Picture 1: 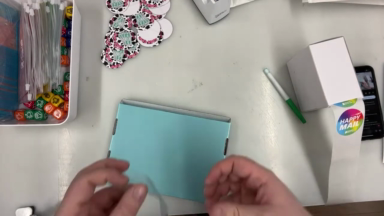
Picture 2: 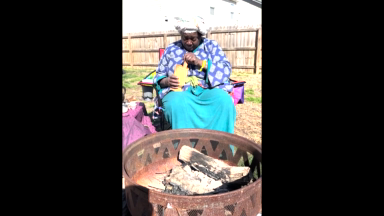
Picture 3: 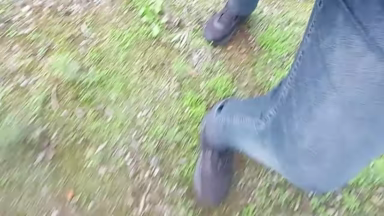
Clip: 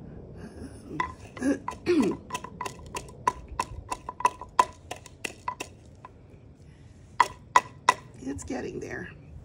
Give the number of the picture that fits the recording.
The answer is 2